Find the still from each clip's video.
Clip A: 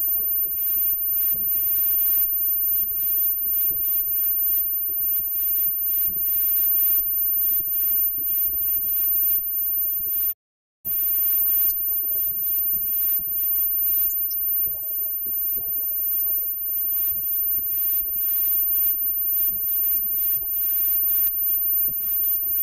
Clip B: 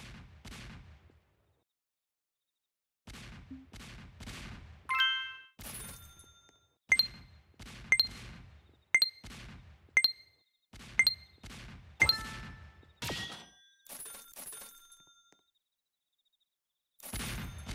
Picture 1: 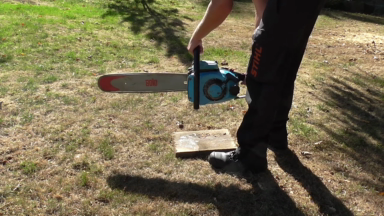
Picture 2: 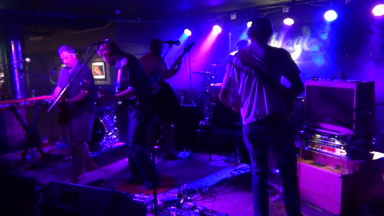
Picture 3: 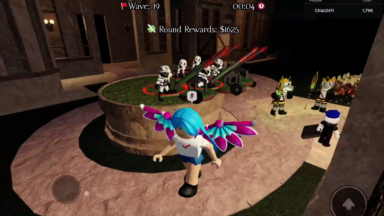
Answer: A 2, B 3